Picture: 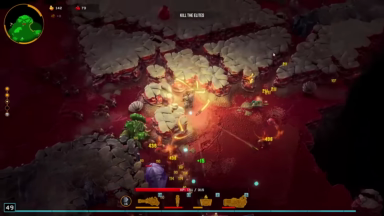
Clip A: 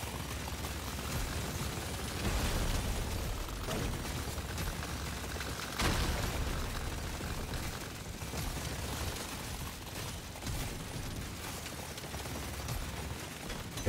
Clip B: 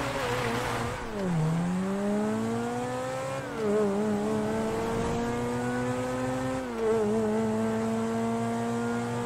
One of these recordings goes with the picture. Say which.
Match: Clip A